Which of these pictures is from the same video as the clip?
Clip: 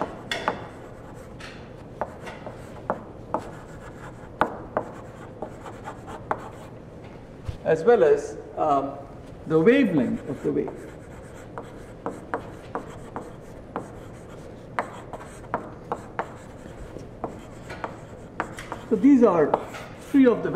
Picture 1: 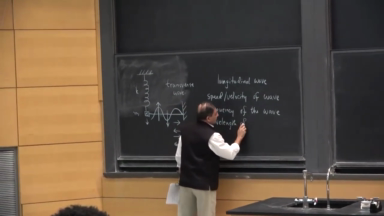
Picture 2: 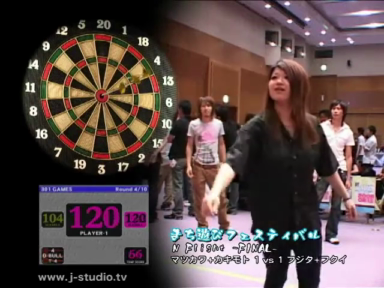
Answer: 1